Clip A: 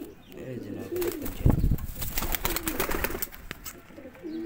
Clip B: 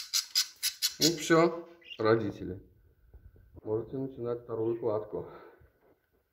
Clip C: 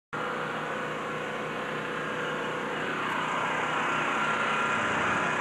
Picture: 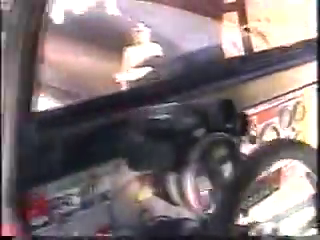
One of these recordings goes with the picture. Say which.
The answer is C